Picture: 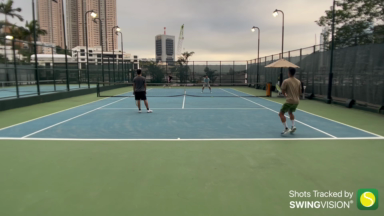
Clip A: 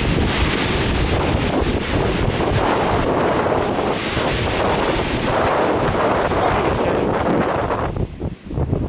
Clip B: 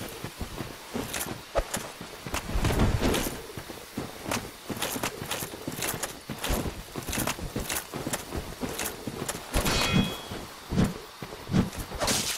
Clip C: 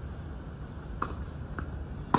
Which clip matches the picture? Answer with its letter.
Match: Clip C